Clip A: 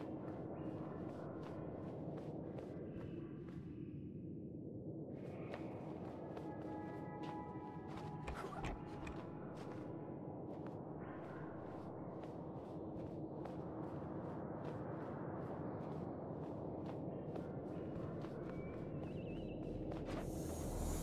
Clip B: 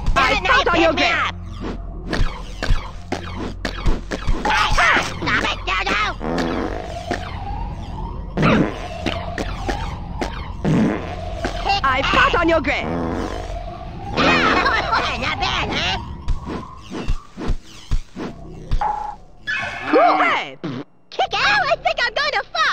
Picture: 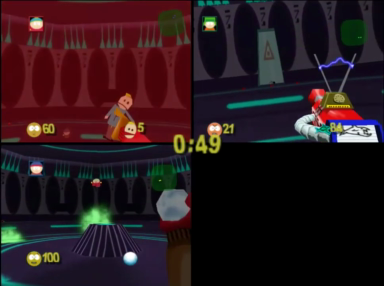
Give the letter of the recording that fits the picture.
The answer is B